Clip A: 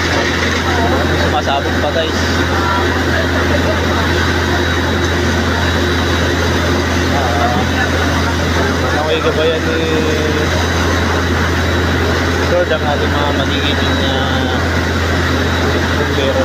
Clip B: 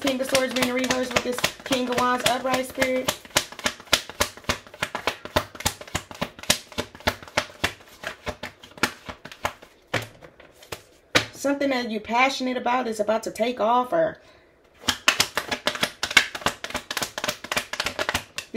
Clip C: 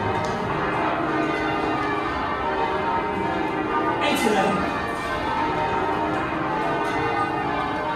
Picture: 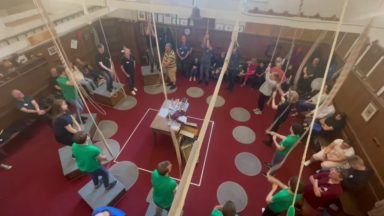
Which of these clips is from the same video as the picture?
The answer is C